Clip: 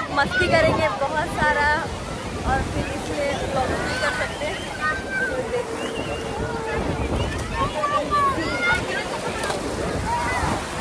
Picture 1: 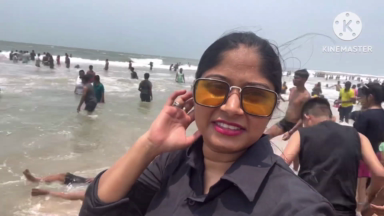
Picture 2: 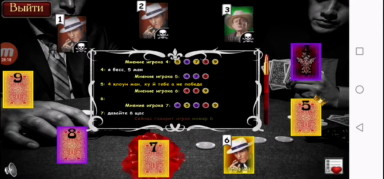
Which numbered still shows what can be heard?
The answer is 1